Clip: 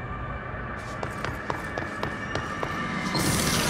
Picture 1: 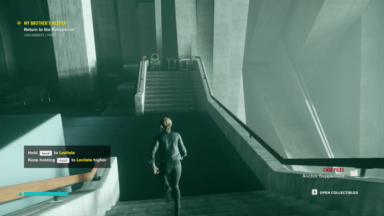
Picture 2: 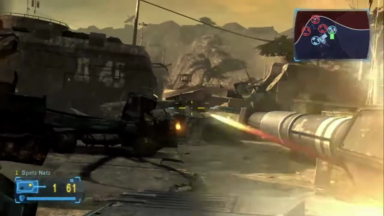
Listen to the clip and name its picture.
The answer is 1